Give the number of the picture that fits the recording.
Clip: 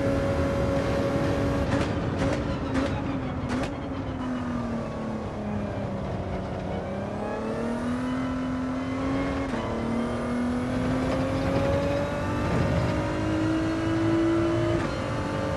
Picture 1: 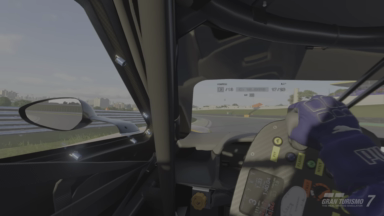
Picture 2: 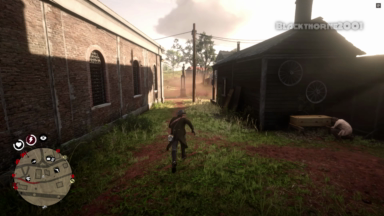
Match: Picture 1